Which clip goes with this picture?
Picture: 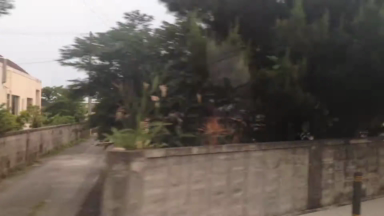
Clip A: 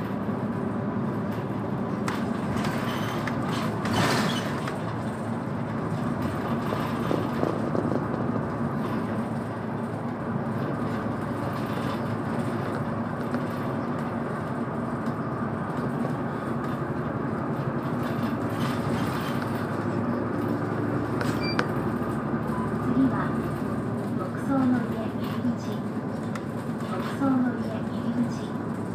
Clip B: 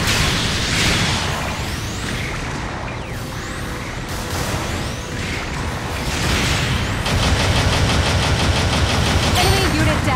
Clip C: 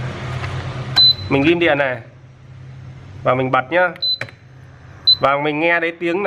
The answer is A